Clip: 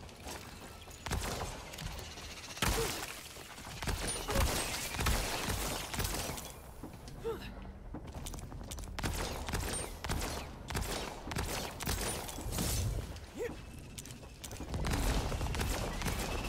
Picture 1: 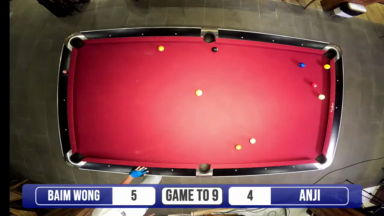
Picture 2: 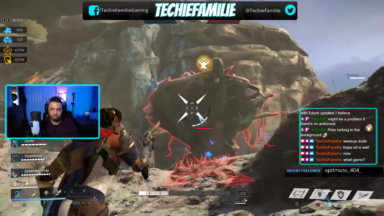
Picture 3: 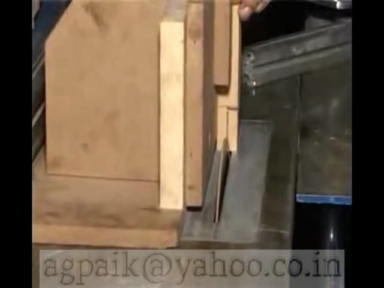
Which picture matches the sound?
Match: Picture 2